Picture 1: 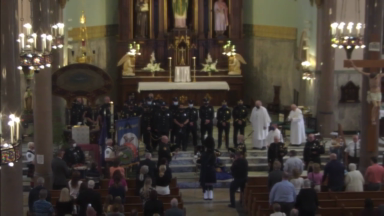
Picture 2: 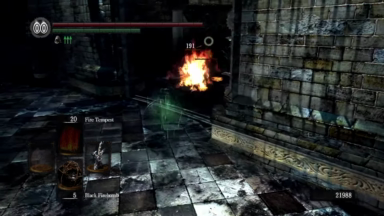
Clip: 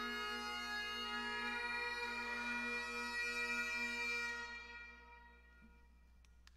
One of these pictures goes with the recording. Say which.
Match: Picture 1